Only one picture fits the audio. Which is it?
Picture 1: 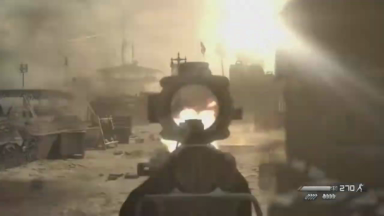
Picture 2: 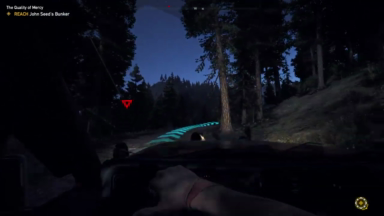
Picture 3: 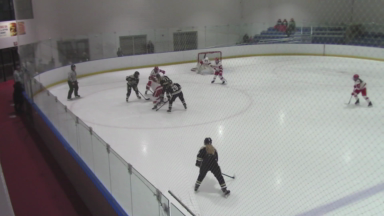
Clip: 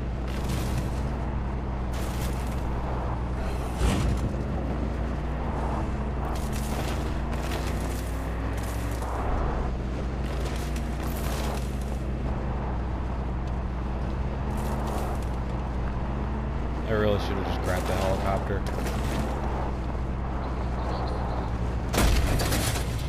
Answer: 2